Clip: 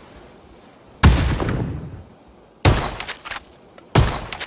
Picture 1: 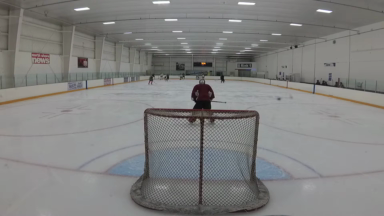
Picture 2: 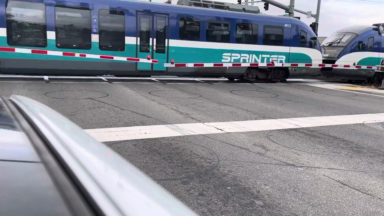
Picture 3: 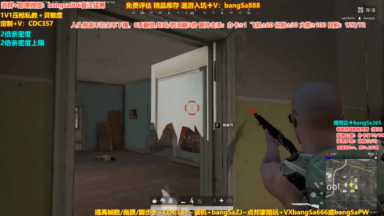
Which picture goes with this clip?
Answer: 3